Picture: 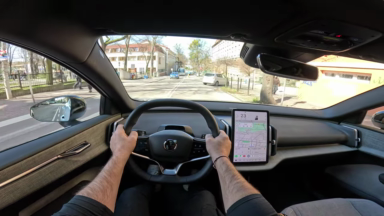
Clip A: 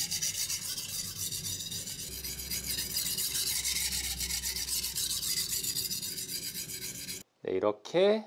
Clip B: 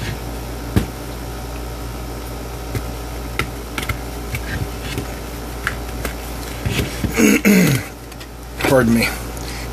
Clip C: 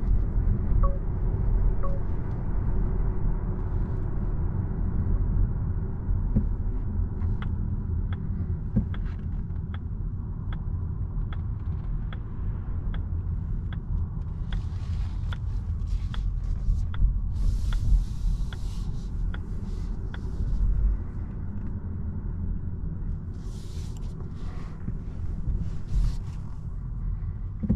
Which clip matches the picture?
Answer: C